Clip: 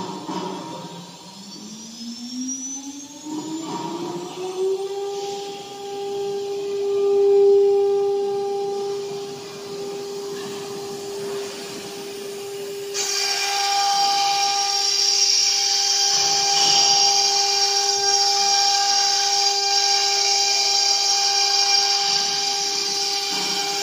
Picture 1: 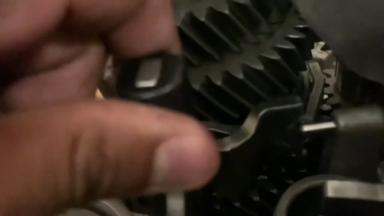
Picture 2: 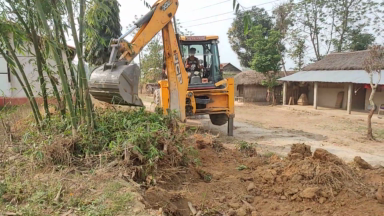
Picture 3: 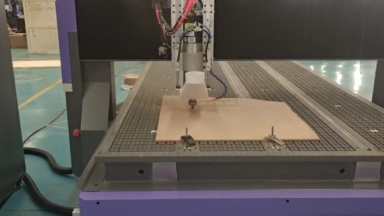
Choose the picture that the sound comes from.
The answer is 3